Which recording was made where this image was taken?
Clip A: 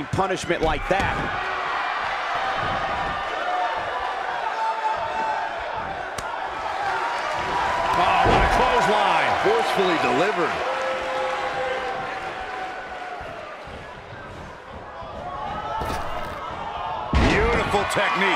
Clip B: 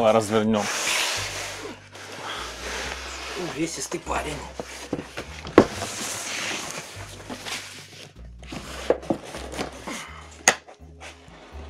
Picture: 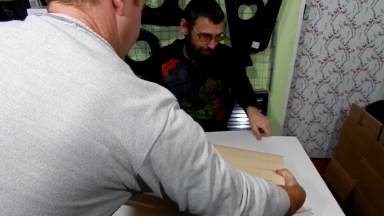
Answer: B